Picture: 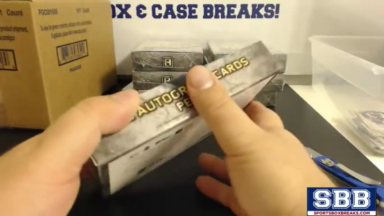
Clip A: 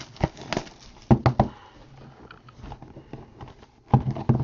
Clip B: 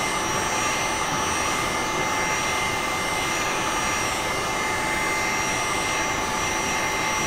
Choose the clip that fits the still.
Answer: A